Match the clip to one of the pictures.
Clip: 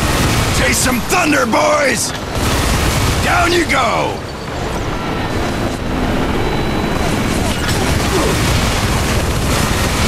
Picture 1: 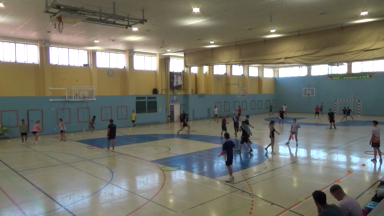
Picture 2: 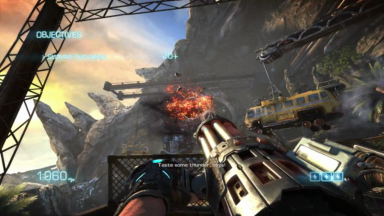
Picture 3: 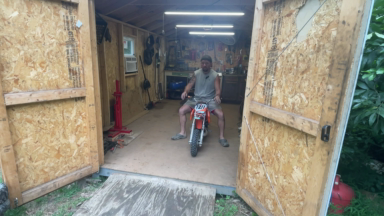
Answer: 2